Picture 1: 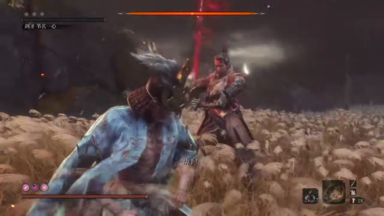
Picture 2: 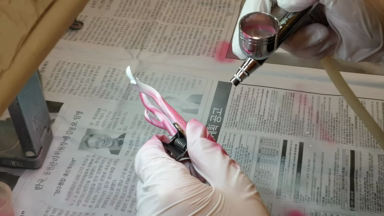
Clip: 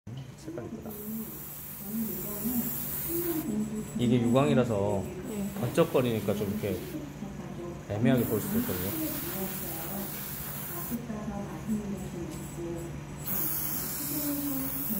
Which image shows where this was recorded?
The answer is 2